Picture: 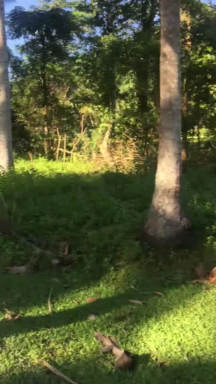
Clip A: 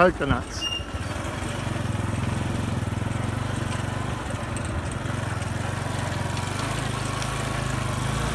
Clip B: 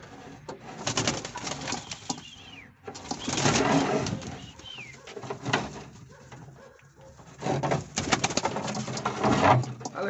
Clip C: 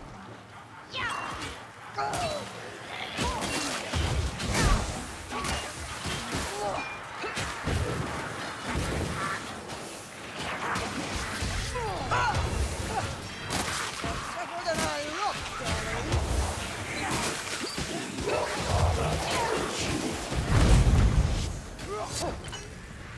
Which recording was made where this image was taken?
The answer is A